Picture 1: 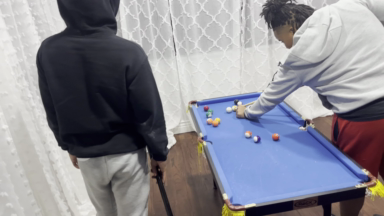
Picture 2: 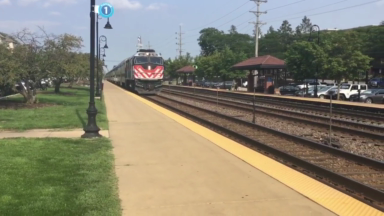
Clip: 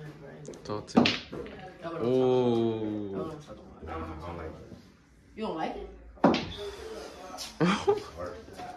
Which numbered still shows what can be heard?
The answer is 1